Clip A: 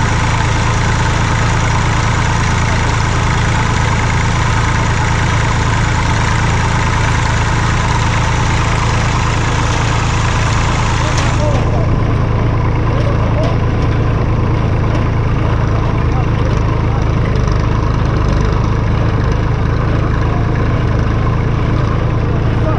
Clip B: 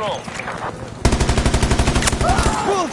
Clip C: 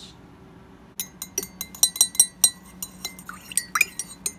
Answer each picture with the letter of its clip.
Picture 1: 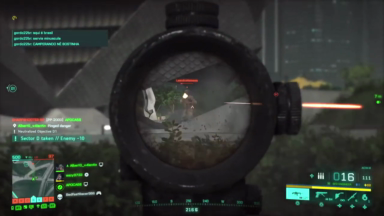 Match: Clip B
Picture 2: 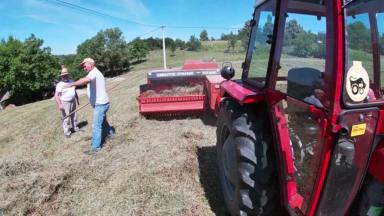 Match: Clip A